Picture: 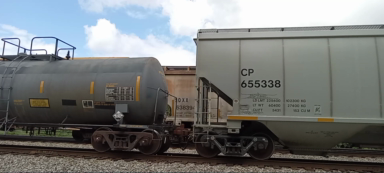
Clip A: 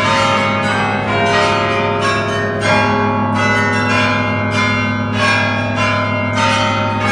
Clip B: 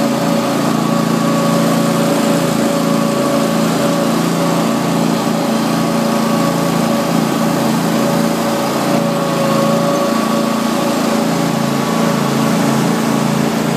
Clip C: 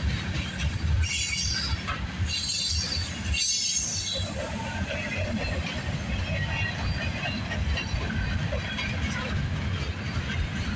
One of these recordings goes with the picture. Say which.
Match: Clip C